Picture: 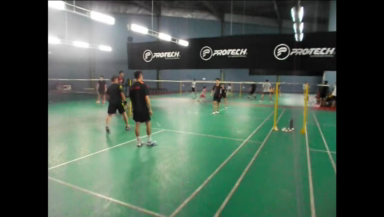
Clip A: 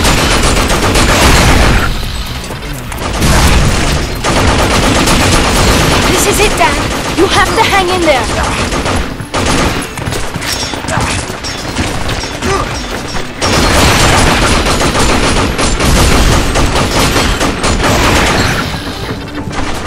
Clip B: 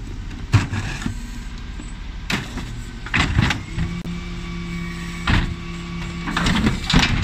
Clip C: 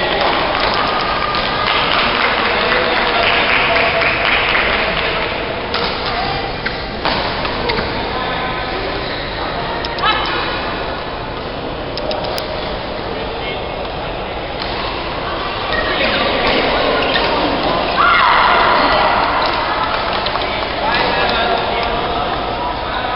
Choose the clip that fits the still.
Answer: C